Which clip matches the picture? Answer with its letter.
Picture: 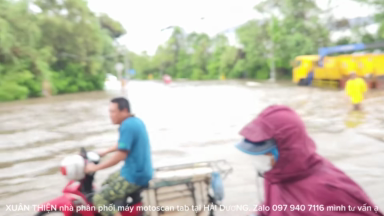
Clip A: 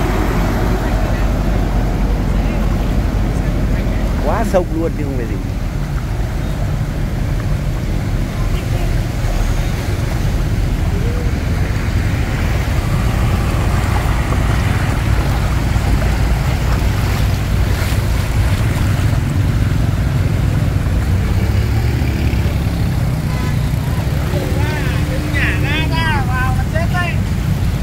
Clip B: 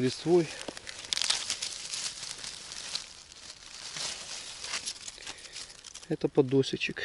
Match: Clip A